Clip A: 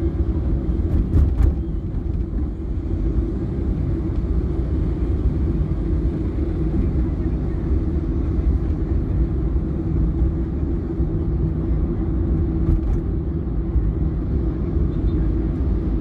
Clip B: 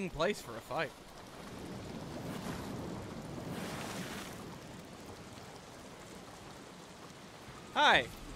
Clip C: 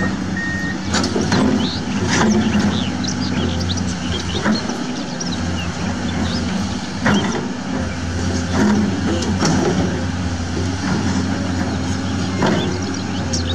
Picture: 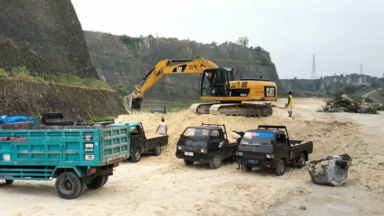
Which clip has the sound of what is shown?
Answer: C